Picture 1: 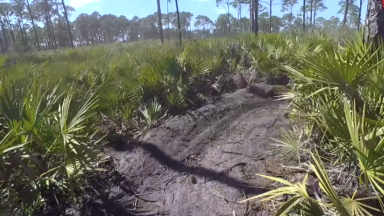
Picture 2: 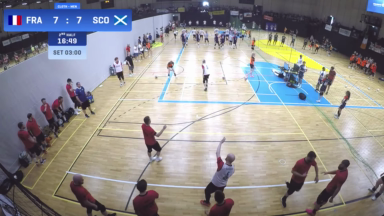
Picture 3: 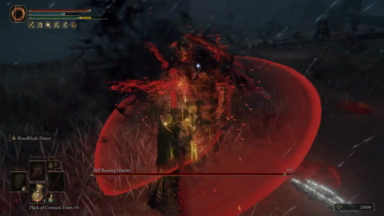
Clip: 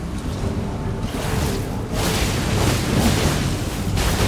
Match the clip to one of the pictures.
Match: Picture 3